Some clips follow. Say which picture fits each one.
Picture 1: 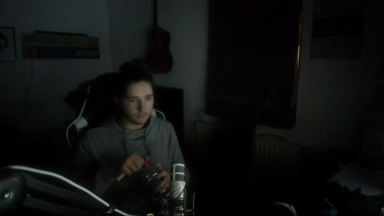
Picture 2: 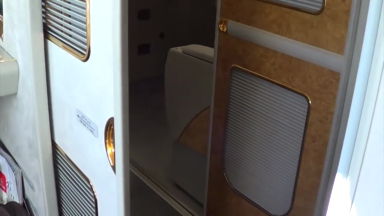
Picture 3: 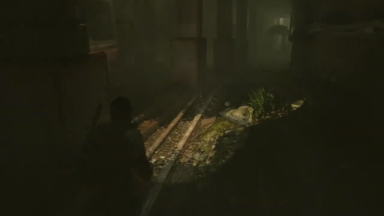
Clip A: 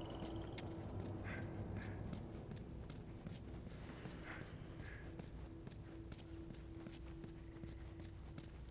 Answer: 3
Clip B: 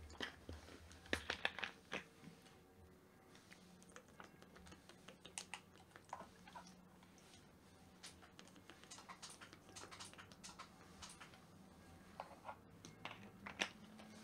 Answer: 1